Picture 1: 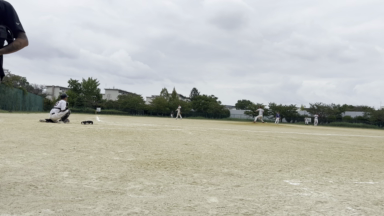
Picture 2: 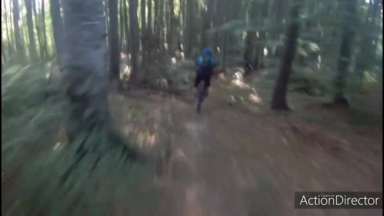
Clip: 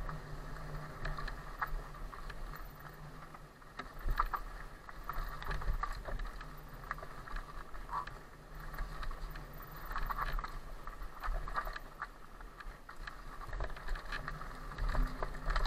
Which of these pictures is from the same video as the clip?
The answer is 2